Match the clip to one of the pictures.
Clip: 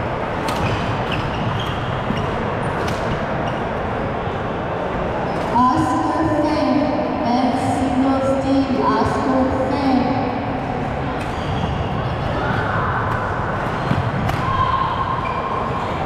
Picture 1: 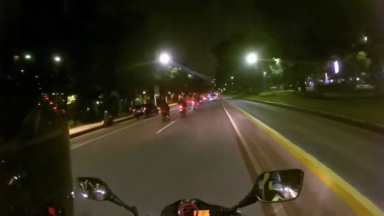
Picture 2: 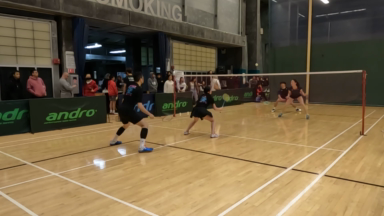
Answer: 2